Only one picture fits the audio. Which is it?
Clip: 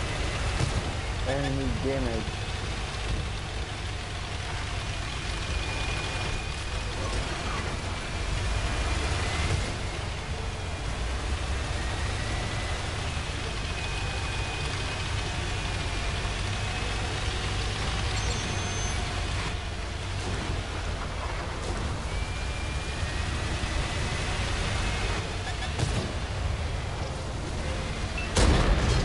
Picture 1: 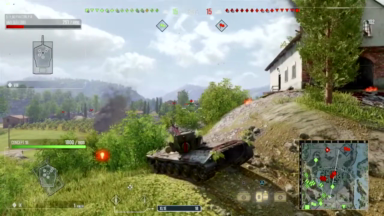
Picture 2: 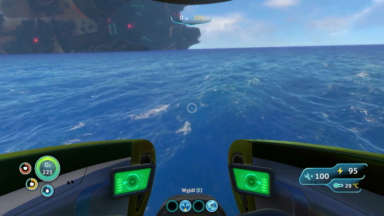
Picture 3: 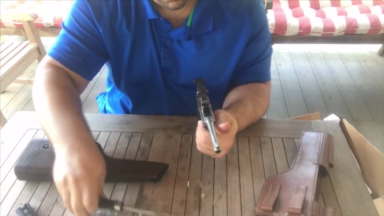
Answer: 1